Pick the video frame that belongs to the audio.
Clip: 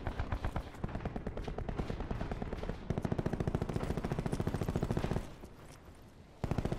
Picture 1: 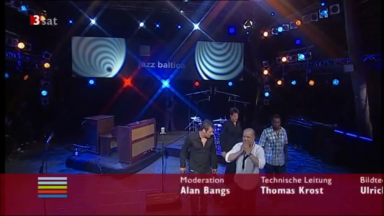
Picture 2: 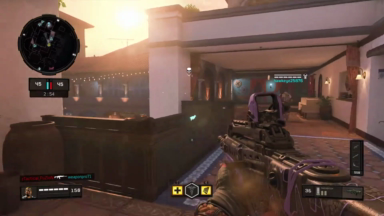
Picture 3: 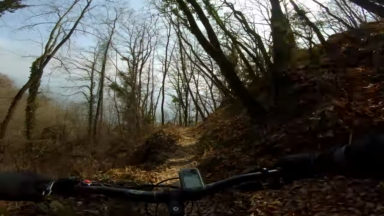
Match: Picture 2